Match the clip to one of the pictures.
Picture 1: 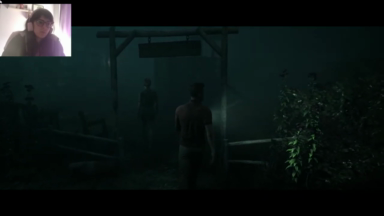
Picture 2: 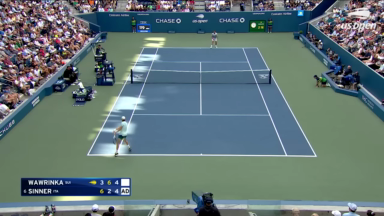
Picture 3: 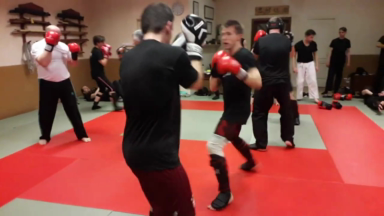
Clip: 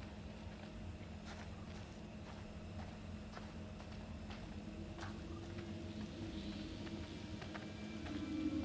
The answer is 1